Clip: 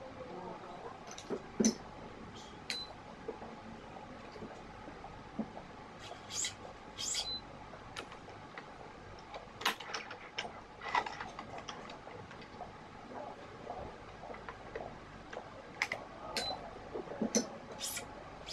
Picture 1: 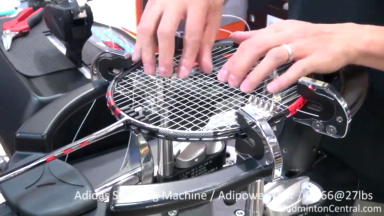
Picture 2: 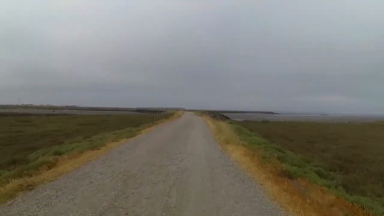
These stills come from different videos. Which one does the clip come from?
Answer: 1